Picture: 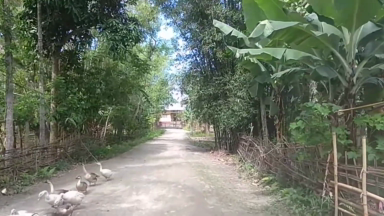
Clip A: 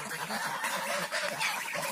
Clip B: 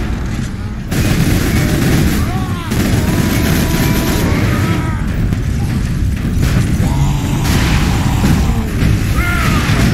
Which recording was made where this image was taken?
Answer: A